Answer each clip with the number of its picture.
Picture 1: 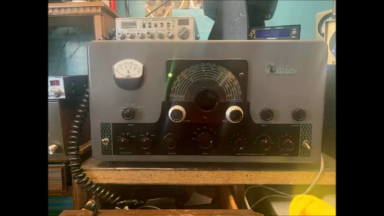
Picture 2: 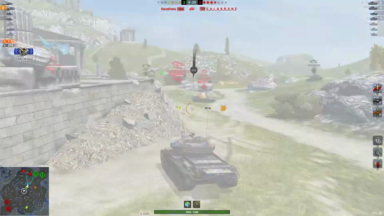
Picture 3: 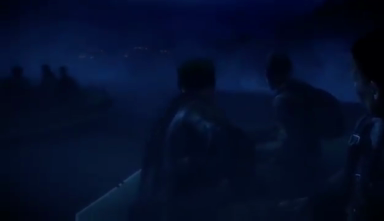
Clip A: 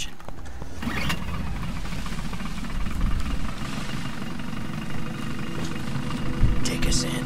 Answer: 3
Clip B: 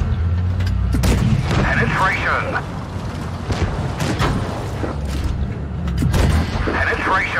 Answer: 2